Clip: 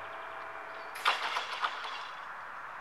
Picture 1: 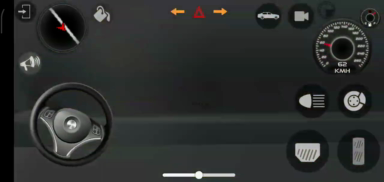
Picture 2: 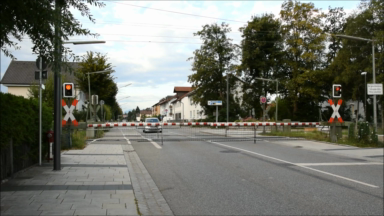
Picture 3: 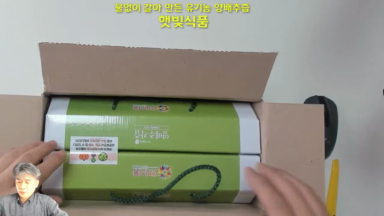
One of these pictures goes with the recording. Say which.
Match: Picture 2